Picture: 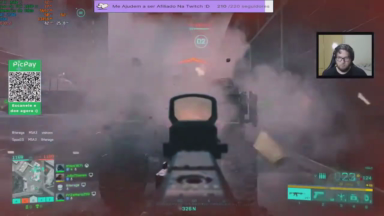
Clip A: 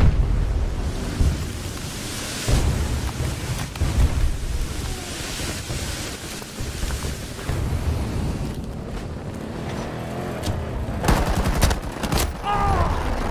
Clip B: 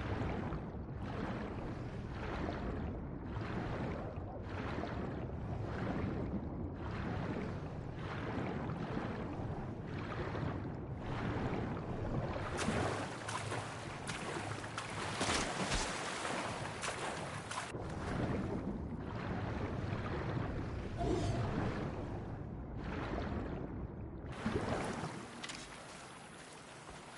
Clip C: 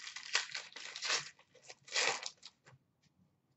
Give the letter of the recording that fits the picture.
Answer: A